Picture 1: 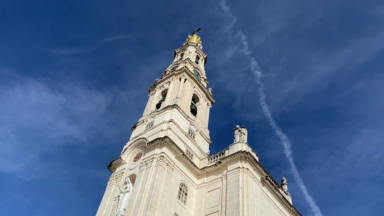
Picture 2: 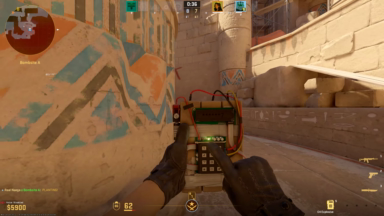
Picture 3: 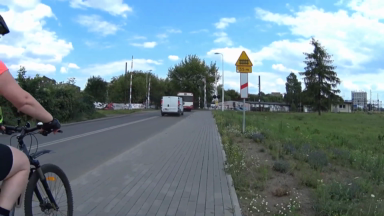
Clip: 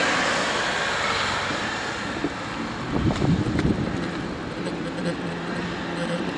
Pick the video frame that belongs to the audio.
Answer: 3